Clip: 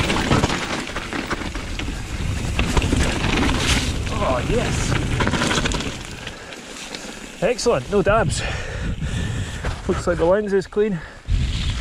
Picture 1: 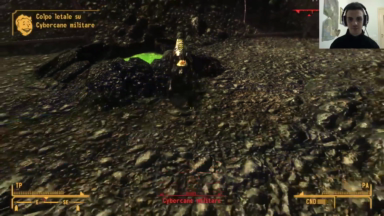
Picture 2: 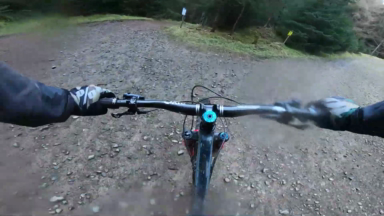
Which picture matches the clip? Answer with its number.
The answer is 2